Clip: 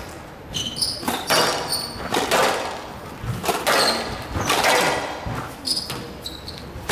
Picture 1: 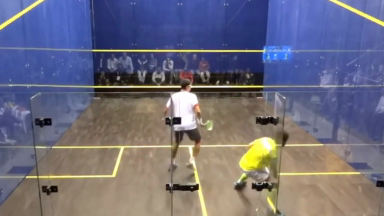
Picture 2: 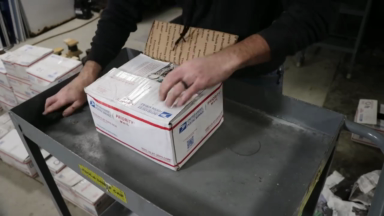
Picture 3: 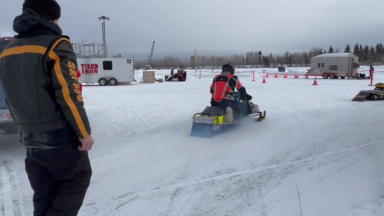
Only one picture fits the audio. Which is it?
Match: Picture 1